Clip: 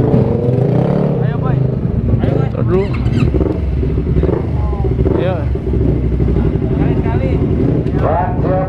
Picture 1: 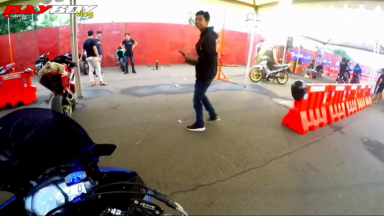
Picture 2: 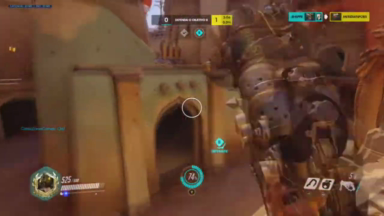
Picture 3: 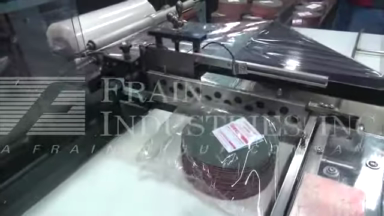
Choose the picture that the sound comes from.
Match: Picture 1